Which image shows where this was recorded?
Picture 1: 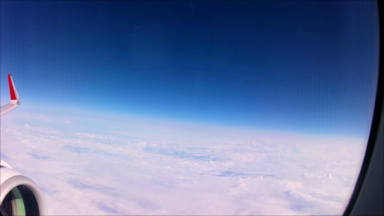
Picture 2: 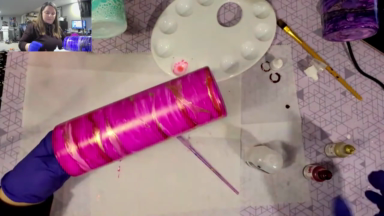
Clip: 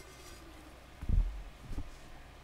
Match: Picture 2